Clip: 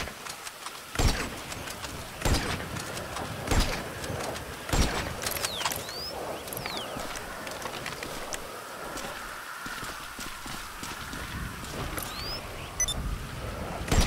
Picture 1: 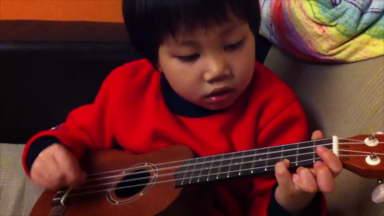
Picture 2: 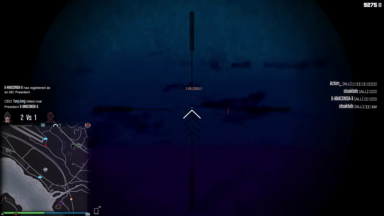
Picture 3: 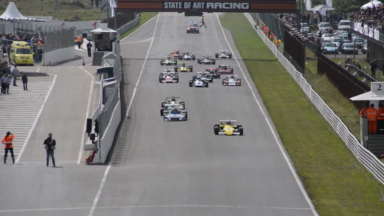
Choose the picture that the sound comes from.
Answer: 2